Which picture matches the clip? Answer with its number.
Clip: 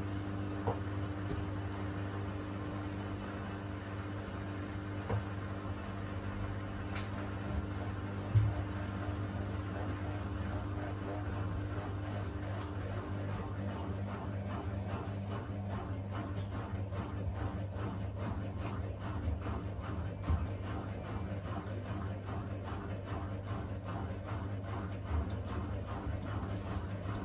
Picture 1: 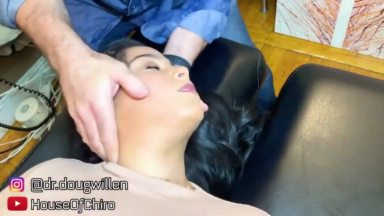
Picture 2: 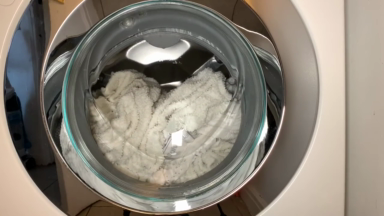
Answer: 2